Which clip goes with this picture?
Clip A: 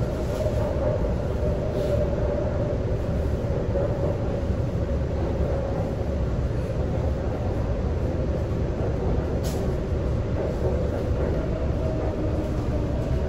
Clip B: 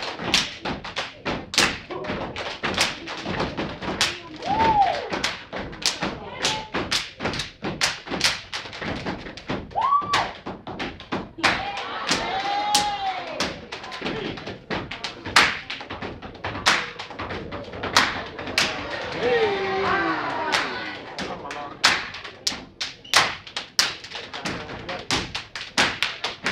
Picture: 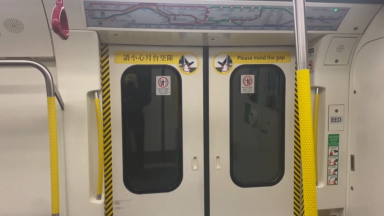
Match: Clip A